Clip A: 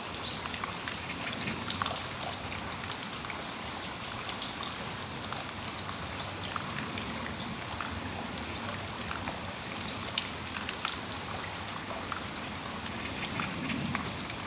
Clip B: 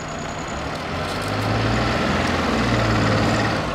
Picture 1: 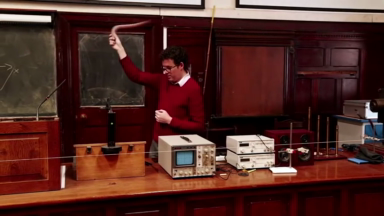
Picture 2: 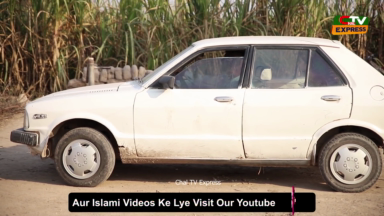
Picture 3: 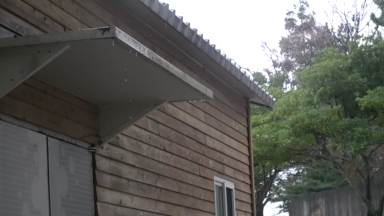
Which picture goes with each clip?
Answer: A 3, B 2